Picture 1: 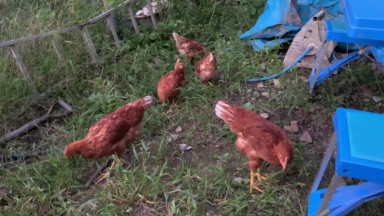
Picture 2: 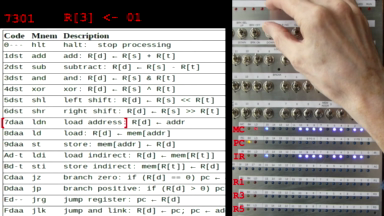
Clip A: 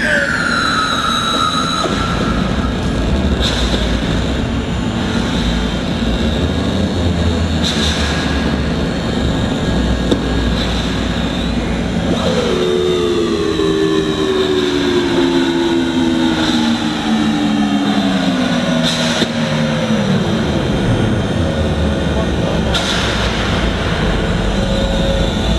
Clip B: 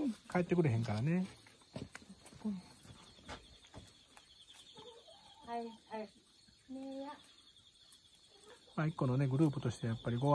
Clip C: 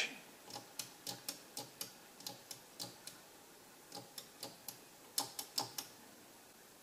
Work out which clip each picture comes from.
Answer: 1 B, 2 C